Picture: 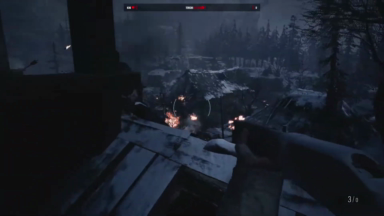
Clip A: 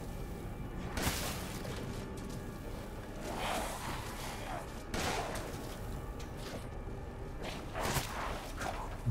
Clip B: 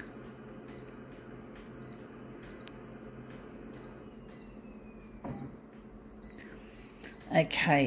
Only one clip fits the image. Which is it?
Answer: A